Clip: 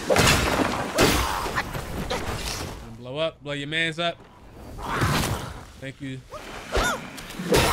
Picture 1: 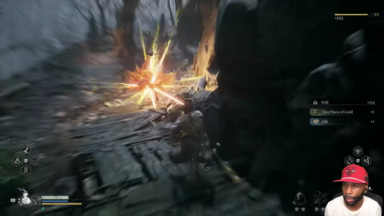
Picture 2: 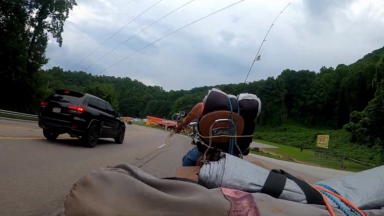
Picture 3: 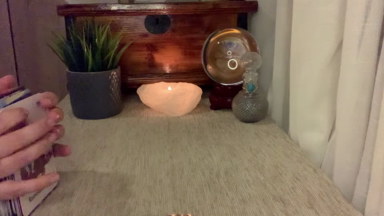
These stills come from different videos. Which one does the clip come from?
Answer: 1